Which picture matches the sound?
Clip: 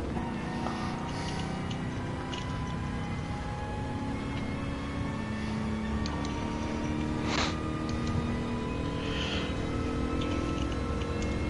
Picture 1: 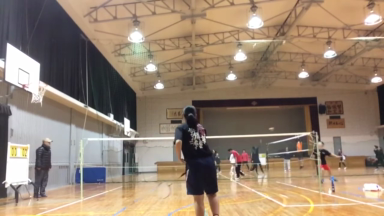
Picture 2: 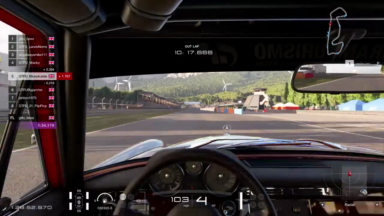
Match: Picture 2